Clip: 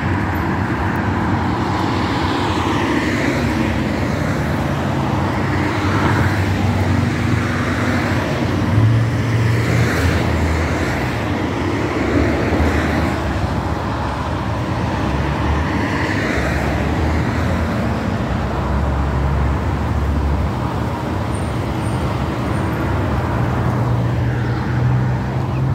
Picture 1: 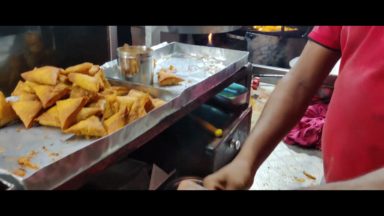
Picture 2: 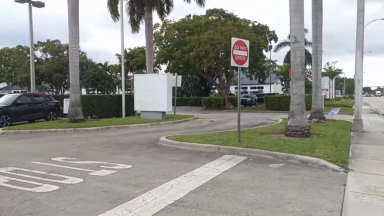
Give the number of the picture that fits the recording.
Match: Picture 2